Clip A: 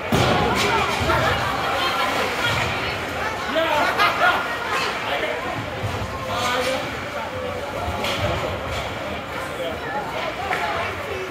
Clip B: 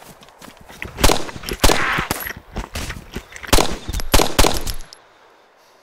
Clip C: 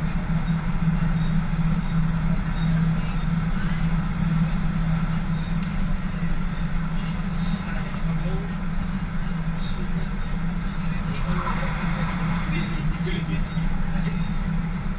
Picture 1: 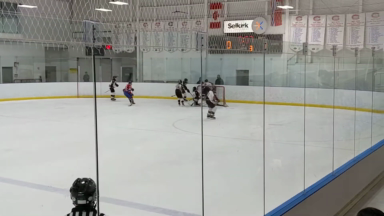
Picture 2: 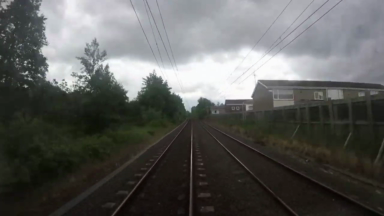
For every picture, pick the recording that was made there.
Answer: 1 A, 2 C